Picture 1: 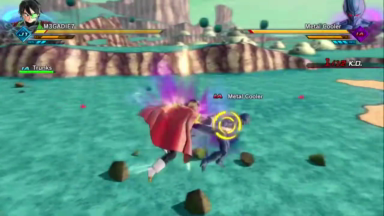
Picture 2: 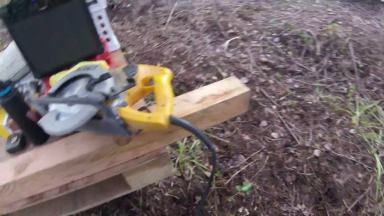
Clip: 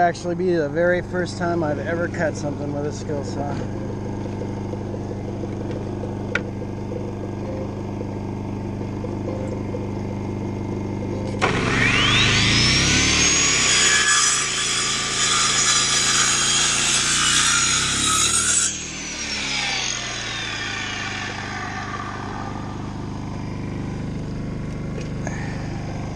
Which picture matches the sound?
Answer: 2